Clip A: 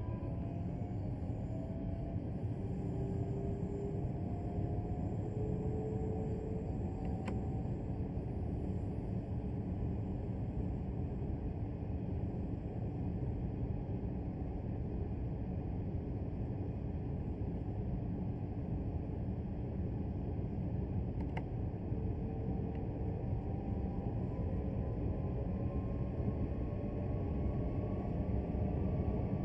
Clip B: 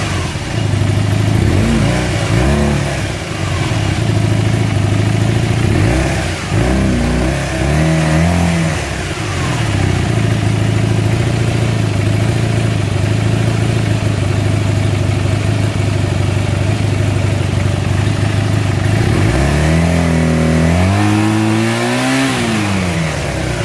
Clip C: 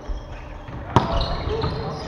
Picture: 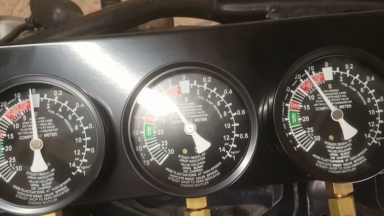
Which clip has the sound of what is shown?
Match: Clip B